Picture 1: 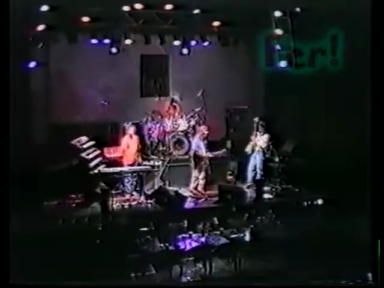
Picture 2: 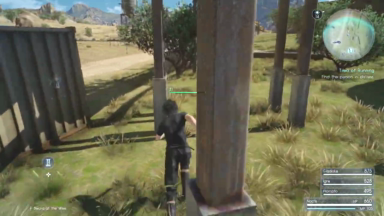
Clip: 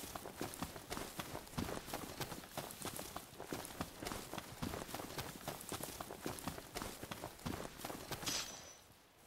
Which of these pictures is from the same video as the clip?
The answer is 2